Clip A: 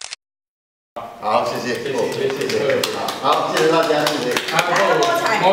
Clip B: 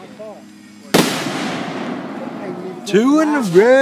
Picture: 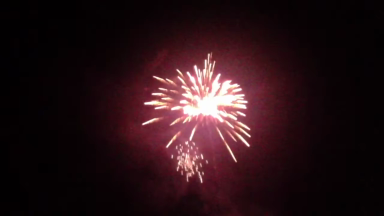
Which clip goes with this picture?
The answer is B